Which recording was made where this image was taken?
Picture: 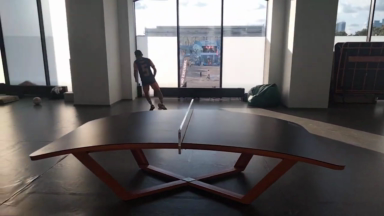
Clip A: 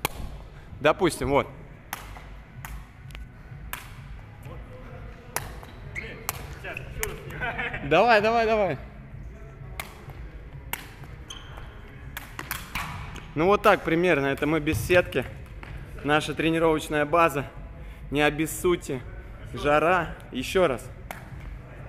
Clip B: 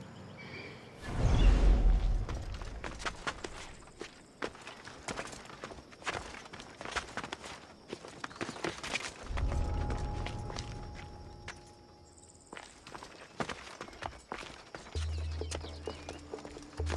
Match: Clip A